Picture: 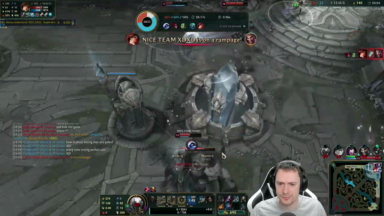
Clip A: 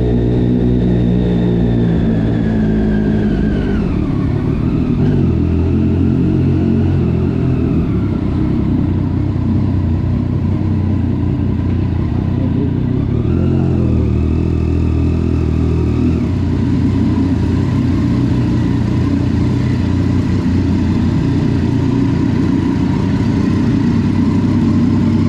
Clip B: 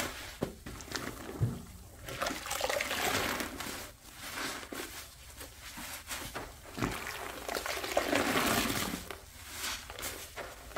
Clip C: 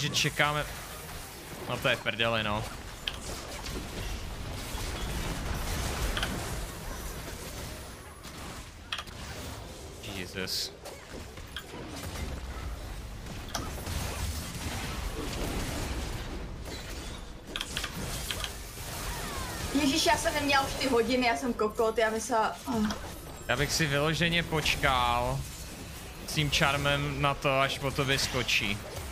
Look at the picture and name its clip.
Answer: C